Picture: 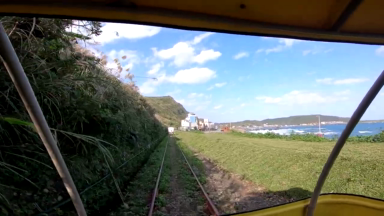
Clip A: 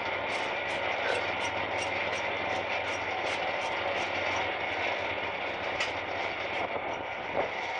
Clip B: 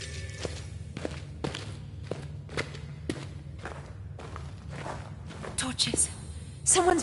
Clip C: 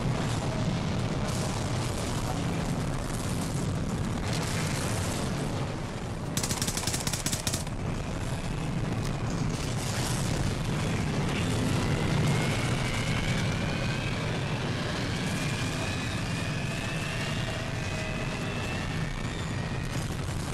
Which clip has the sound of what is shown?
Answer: A